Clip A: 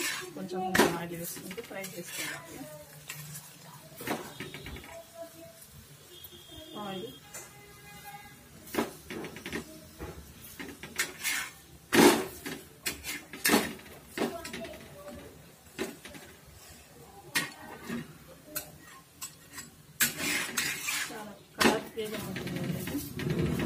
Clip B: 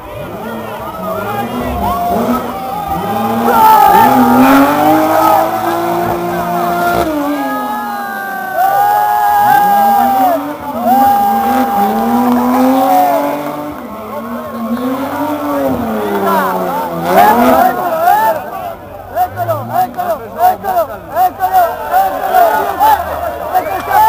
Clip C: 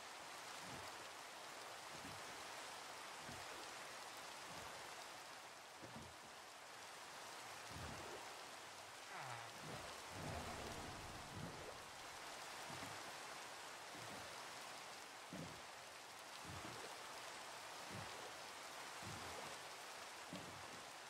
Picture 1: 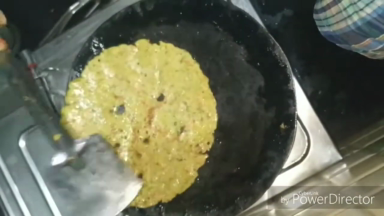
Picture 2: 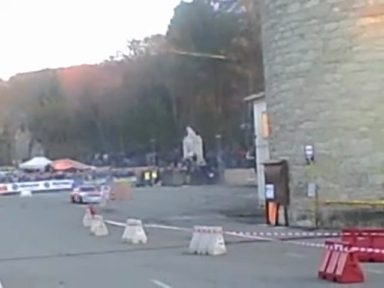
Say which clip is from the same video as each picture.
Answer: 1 A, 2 B